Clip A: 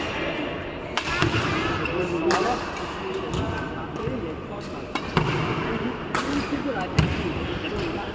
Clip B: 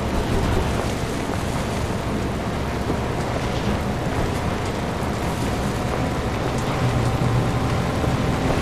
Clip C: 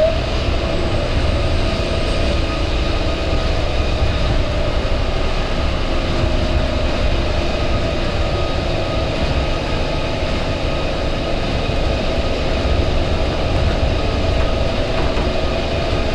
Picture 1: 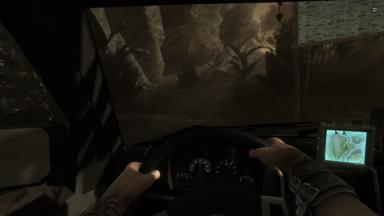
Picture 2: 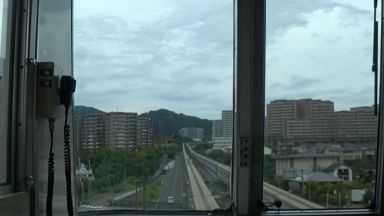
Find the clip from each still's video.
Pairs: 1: B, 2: C